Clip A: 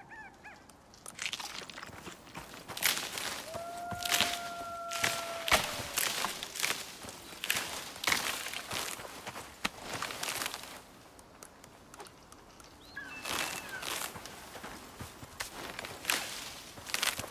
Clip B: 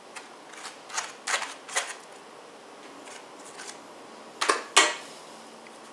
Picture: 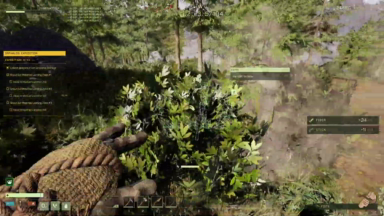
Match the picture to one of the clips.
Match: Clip A